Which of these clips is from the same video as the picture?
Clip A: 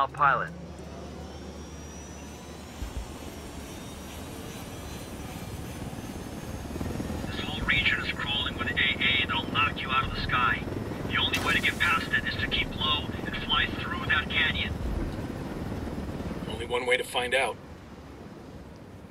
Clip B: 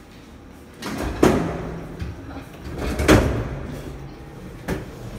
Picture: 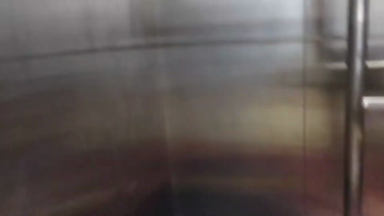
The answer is B